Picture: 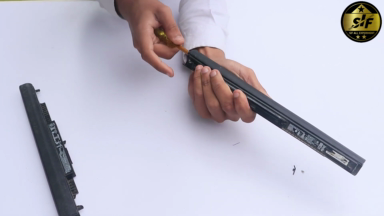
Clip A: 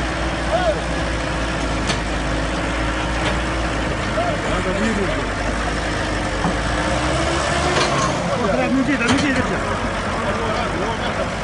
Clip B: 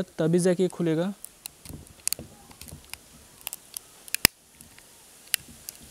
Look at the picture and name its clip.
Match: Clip B